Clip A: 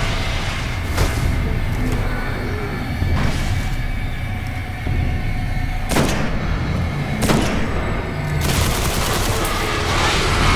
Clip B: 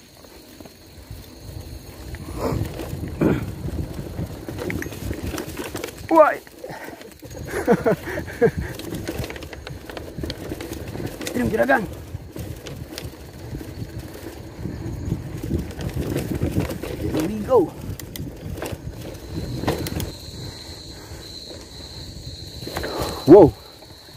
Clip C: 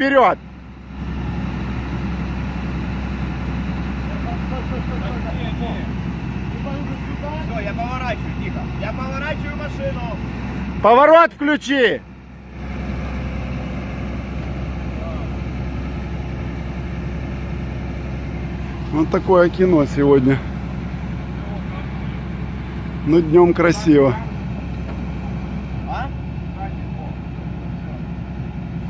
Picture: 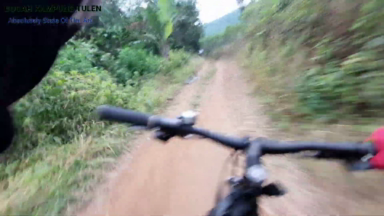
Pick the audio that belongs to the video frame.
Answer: B